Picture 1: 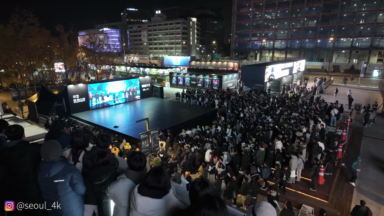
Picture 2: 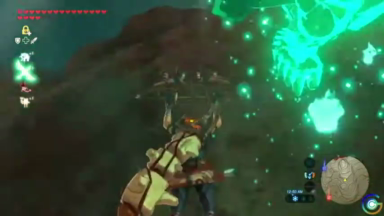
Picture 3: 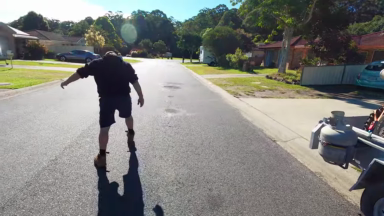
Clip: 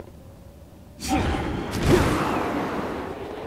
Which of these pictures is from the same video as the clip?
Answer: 2